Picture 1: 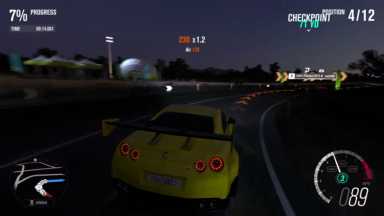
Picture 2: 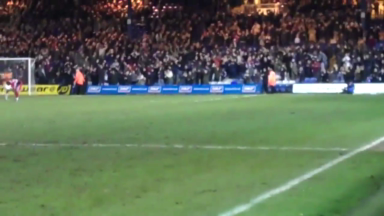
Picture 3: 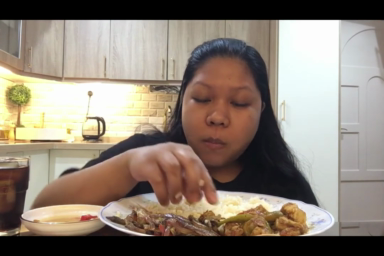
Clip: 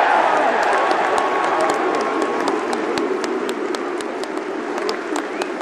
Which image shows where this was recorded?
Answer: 2